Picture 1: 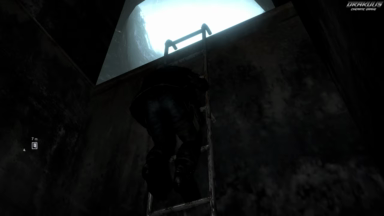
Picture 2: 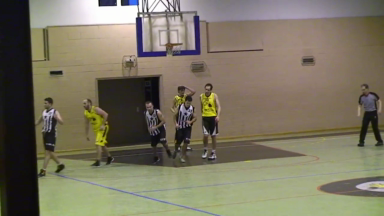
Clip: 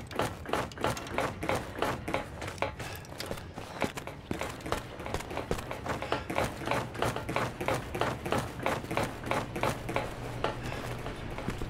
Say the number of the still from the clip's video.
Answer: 1